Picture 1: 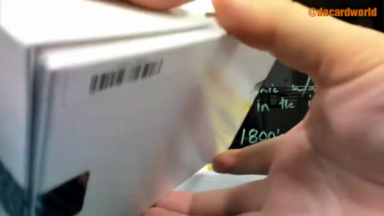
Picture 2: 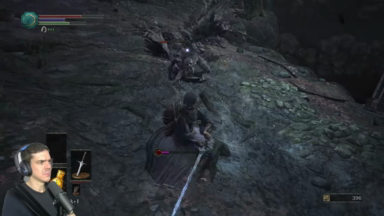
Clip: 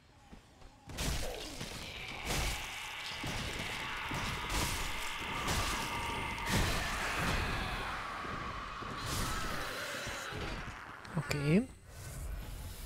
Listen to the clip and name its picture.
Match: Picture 2